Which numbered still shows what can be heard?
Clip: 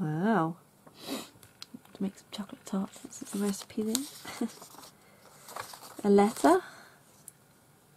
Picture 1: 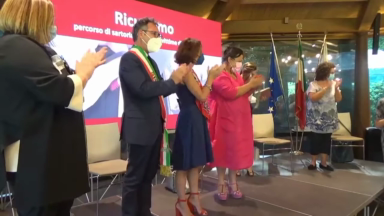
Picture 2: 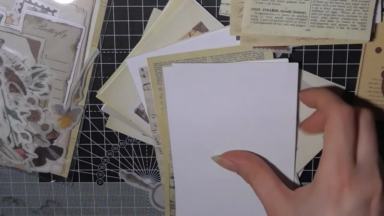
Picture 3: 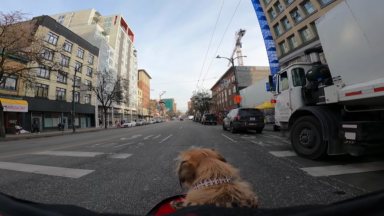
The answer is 2